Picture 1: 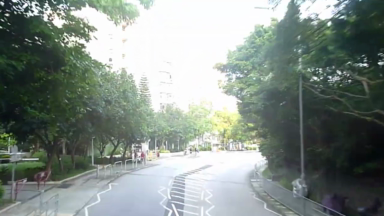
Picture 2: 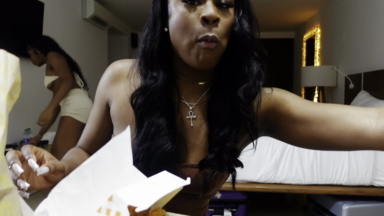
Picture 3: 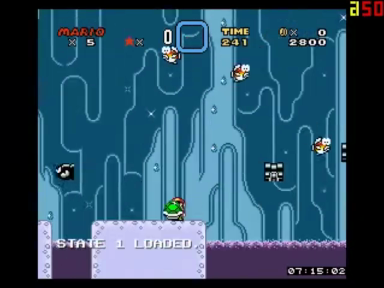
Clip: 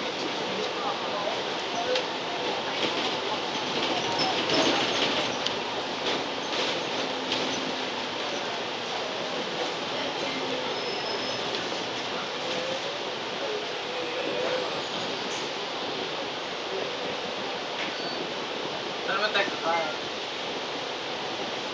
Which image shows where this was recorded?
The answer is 1